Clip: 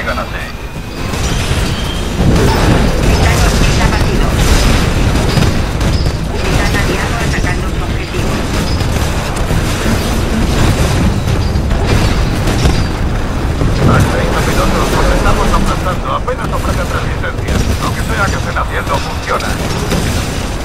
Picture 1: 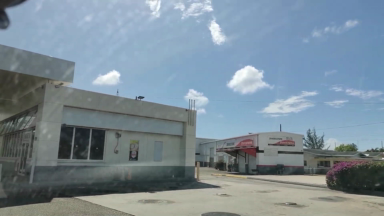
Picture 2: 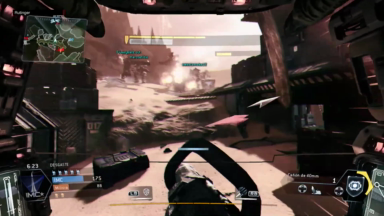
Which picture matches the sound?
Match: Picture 2